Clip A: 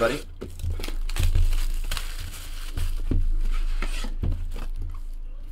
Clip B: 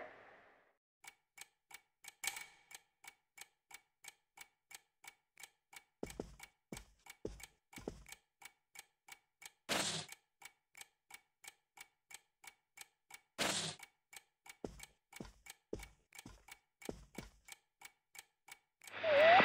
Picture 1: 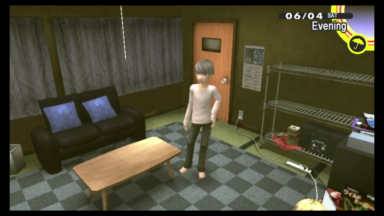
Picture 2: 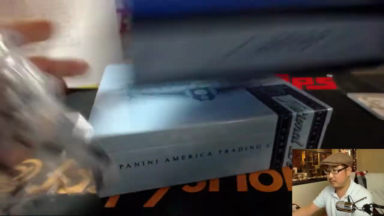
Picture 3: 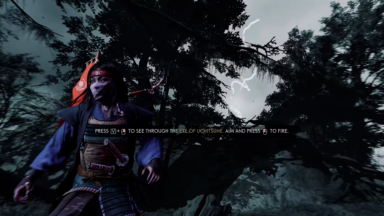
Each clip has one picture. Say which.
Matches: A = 2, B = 1